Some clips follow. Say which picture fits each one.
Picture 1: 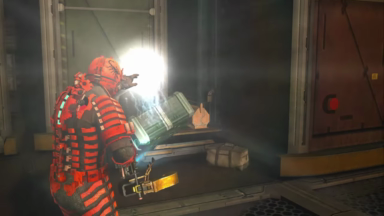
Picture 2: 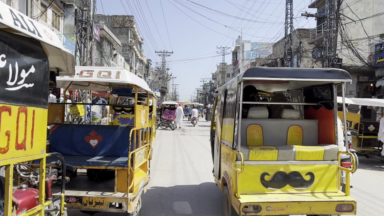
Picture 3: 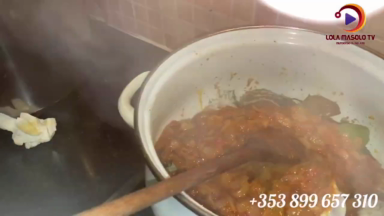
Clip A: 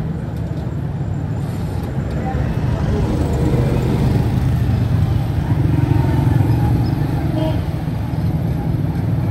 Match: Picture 2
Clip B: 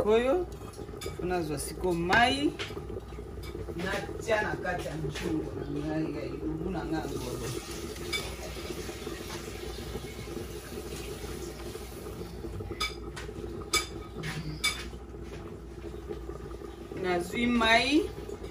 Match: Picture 3